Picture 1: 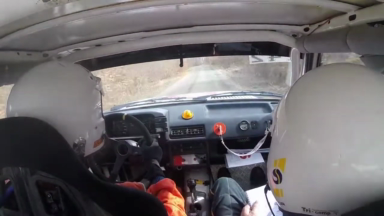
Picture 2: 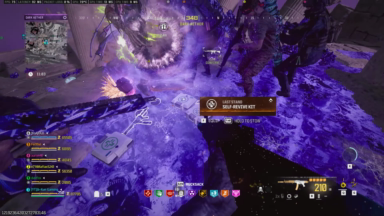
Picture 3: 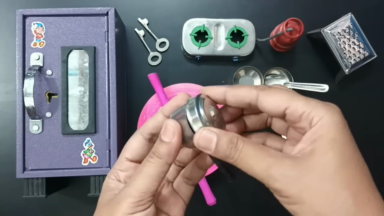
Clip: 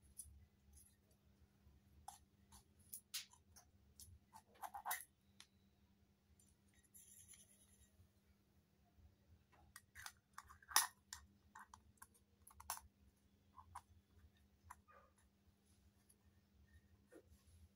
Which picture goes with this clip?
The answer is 3